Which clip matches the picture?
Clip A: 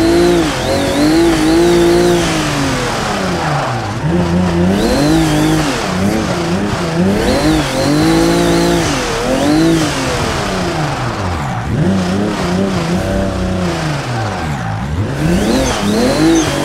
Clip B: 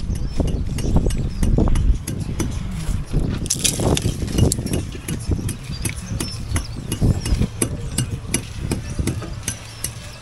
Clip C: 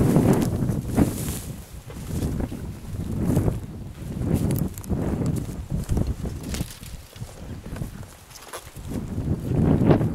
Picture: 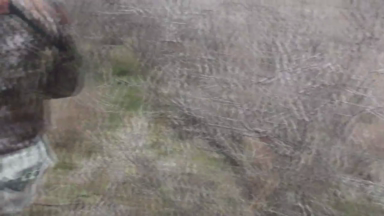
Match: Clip C